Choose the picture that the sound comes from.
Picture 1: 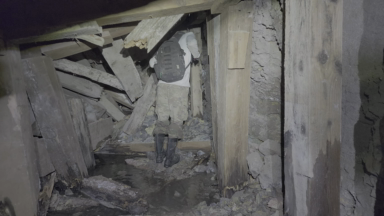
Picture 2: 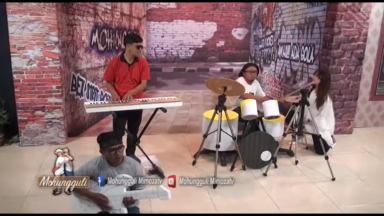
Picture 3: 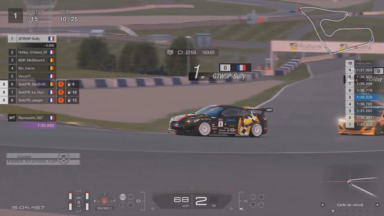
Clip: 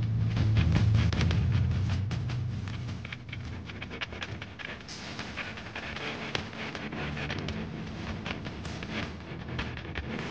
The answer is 2